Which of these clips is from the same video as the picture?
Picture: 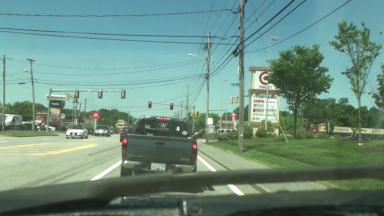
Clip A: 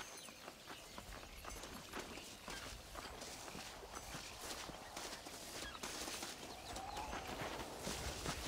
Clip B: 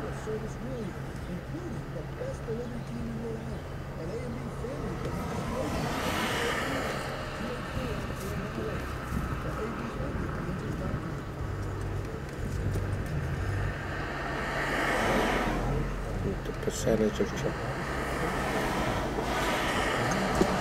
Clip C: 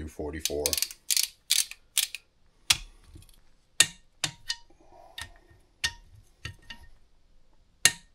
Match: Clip B